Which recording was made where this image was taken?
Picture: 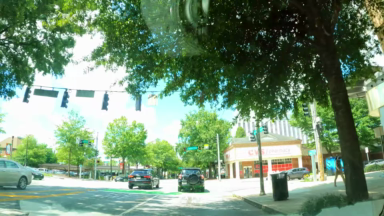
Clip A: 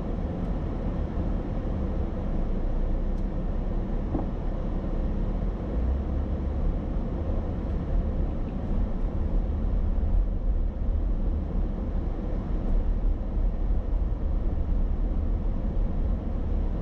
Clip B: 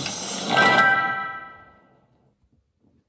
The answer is A